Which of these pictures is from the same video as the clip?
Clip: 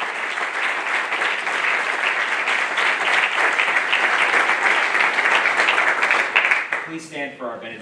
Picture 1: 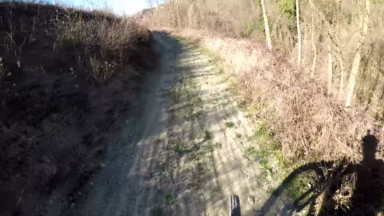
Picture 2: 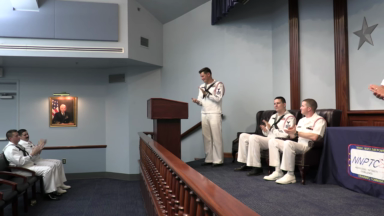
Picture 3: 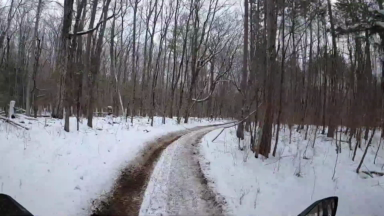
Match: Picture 2